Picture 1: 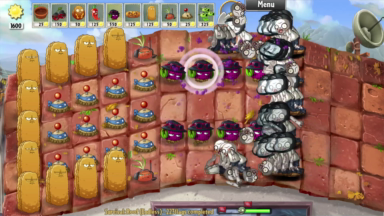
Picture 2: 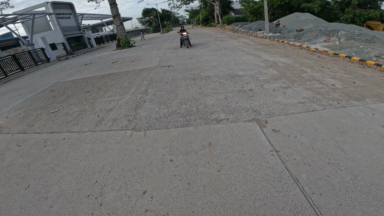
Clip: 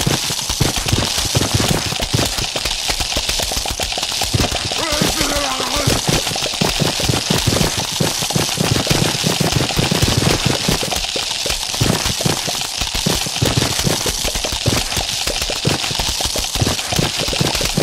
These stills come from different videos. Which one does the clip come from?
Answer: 1